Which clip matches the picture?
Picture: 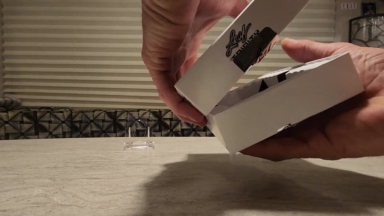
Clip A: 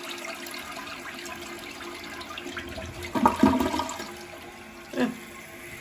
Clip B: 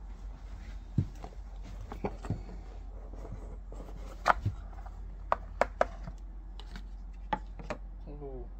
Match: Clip B